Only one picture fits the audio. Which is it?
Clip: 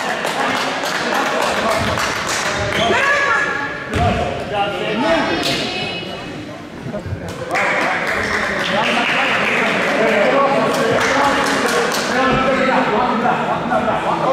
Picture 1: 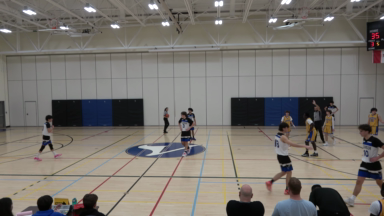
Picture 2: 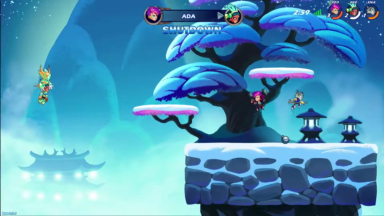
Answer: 1